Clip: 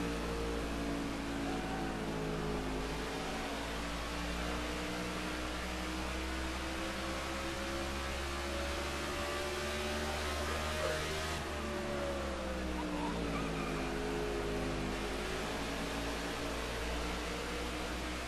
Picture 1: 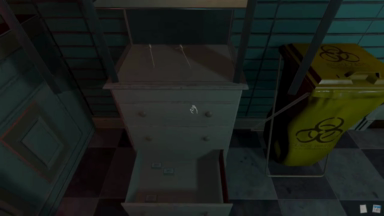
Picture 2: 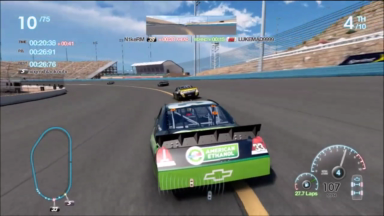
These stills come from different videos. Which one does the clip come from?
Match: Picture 2